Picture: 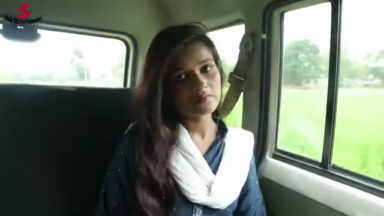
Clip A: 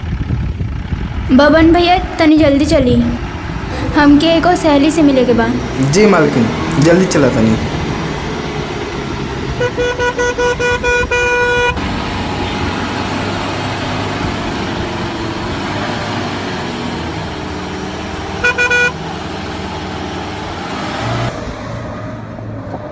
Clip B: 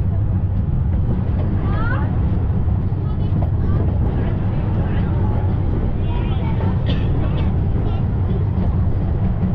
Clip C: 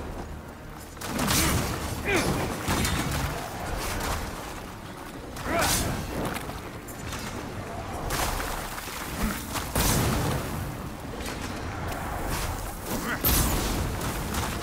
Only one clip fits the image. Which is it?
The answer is A